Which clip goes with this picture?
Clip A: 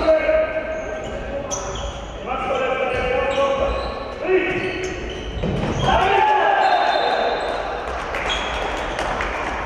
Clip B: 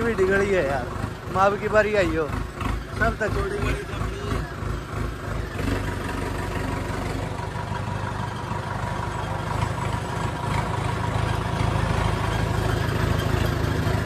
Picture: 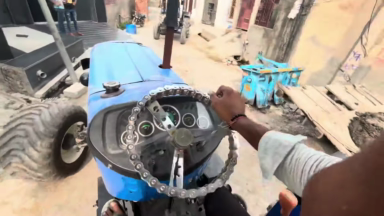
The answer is B